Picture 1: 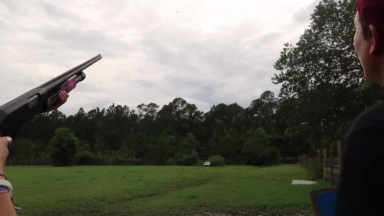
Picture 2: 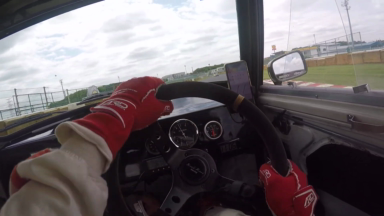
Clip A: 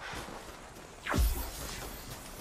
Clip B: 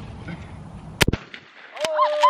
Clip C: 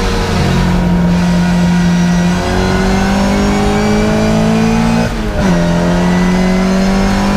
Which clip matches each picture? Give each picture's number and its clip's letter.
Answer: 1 B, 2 C